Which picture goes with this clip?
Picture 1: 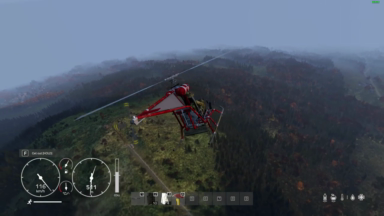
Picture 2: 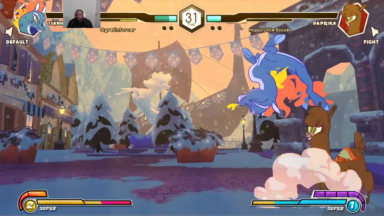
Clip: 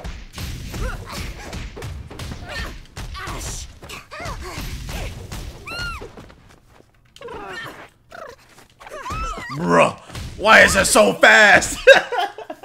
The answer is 2